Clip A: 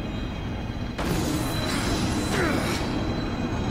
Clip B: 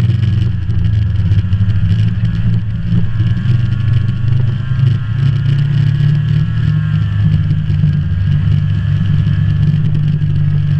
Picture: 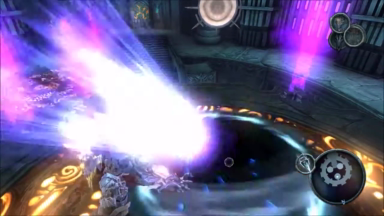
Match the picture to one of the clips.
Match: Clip A